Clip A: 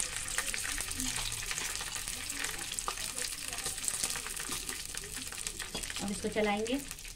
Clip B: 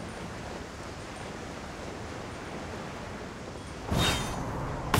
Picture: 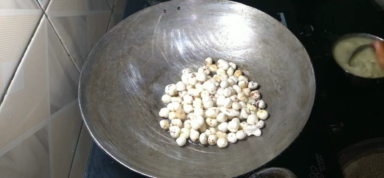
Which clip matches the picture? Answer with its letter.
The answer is A